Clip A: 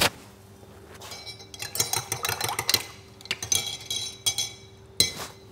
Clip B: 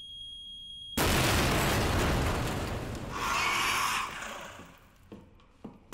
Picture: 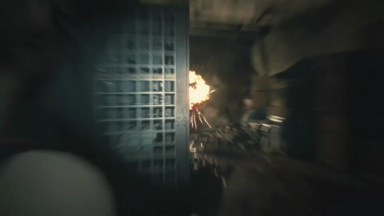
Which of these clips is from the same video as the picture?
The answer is B